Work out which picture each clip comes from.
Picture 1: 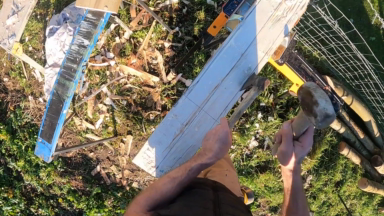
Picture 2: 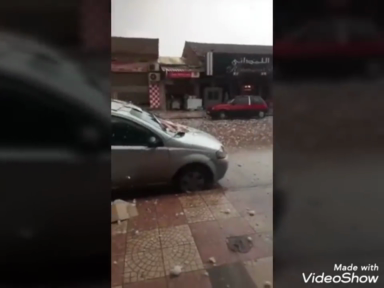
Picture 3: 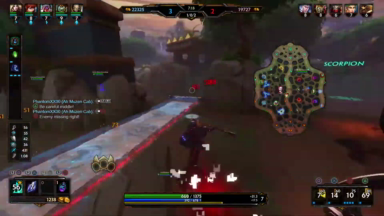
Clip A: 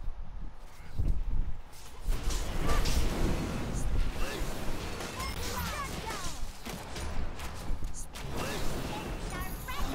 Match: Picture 3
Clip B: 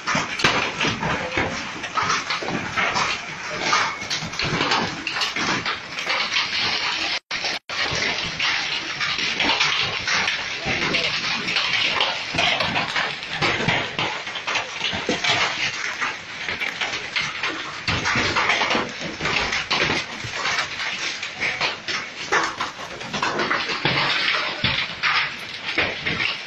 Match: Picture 2